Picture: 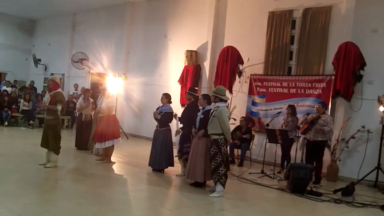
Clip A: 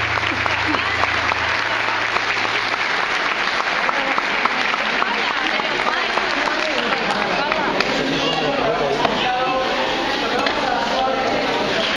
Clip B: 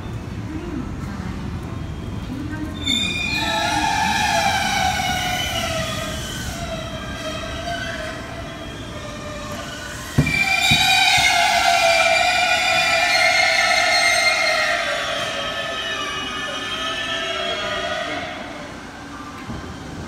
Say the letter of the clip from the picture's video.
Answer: A